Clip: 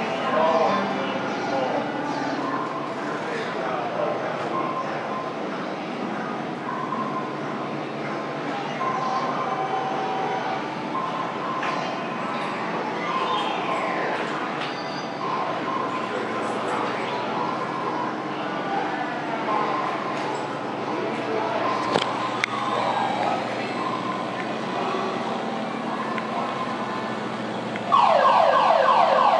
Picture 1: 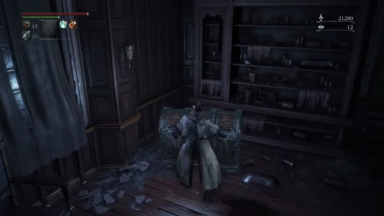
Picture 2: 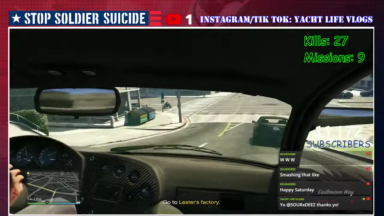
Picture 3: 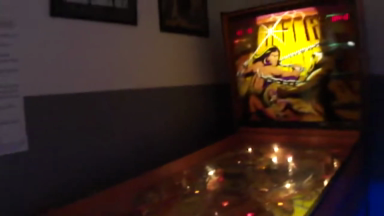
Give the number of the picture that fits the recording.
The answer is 3